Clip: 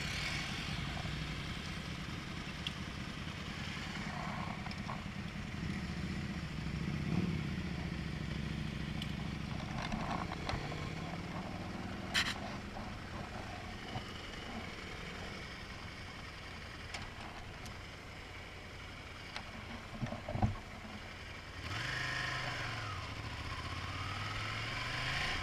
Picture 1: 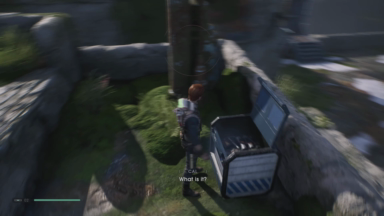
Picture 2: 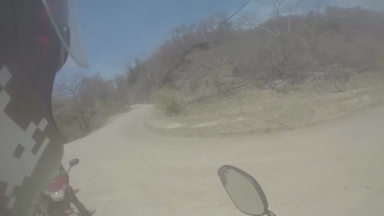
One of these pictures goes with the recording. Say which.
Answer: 2